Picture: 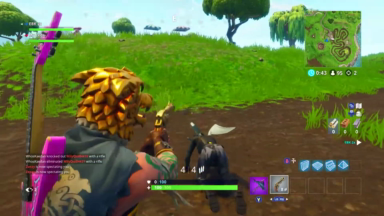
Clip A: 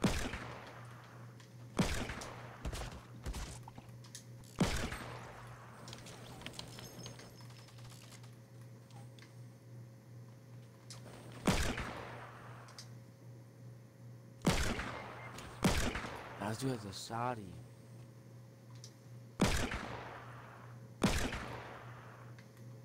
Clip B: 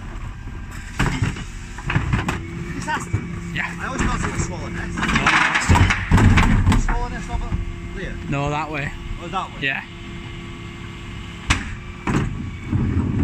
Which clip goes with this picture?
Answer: A